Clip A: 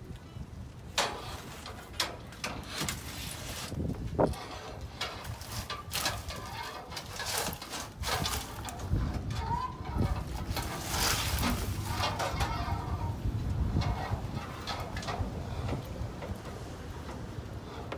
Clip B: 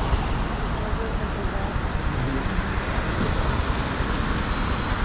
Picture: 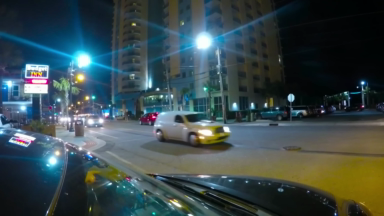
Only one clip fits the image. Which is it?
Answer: B